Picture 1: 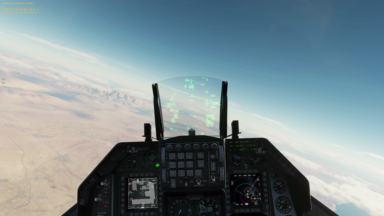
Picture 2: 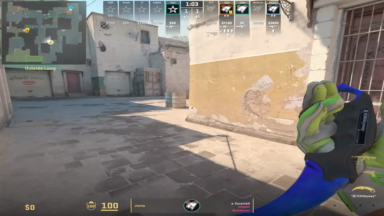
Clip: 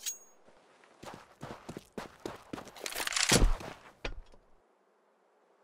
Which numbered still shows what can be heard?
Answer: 2